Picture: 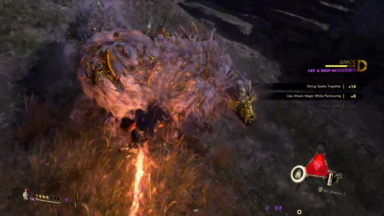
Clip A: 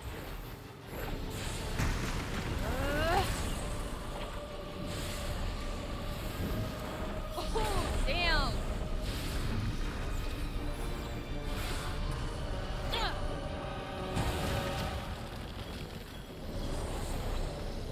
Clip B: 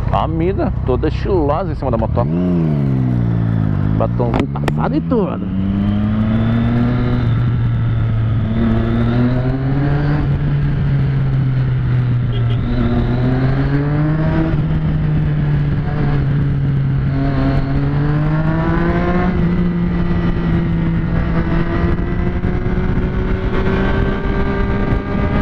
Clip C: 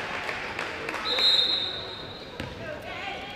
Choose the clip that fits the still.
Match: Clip A